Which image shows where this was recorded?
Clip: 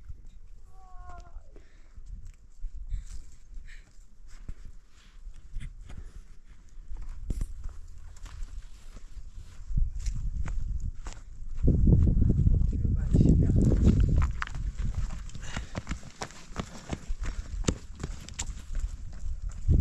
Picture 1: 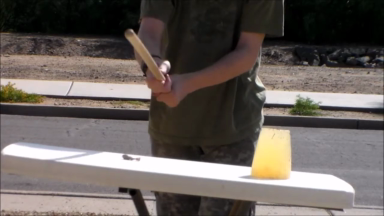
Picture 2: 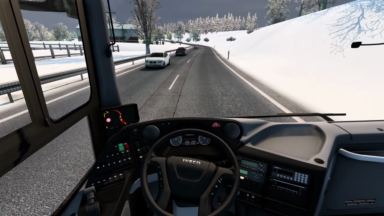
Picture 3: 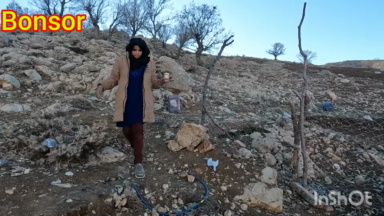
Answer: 3